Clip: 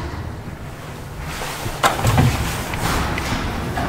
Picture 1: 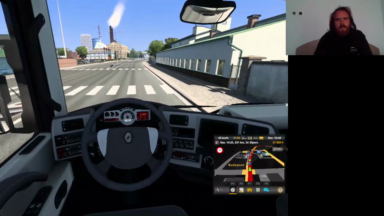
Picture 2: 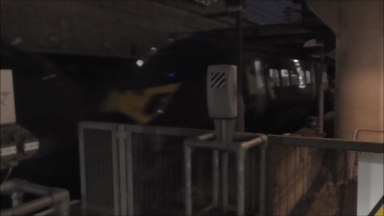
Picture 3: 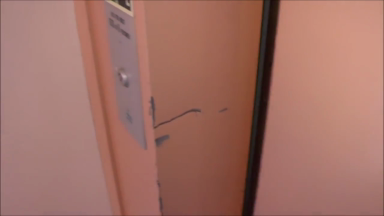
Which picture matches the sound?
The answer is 3